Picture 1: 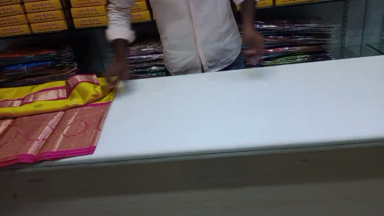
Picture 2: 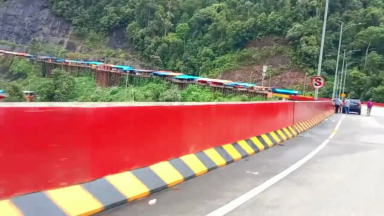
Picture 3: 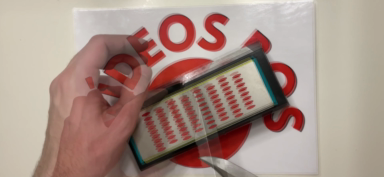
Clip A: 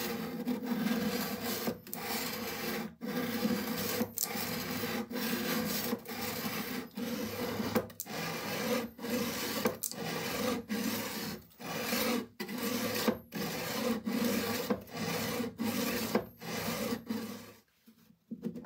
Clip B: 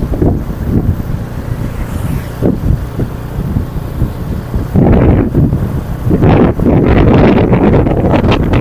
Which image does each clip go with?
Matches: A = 3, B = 2